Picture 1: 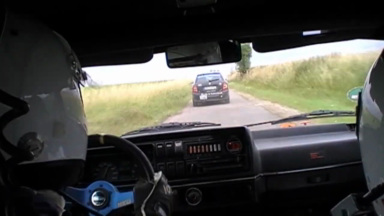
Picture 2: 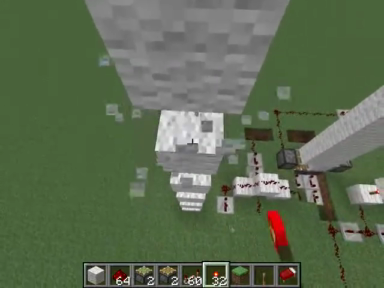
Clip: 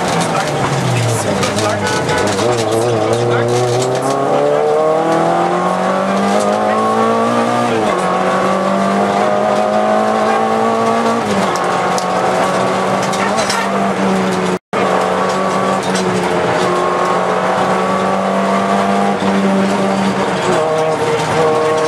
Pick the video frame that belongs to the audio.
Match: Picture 1